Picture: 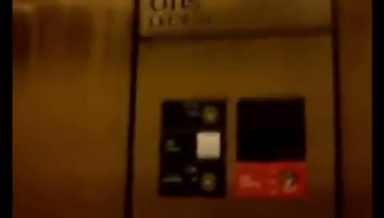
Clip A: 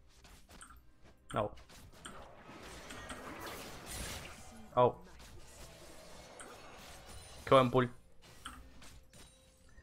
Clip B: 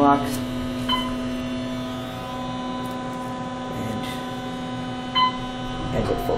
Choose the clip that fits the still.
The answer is B